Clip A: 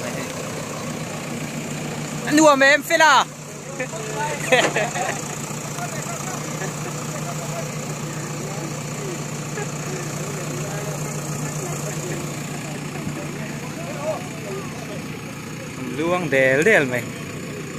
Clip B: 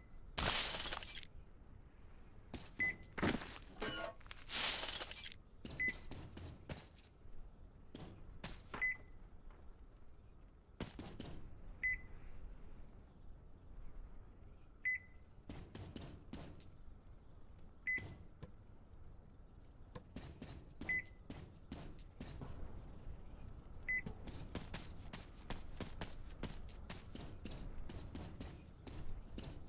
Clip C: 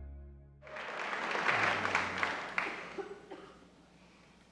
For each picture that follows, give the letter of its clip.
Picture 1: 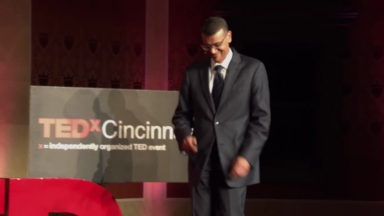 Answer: C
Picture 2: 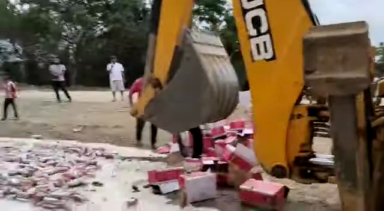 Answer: A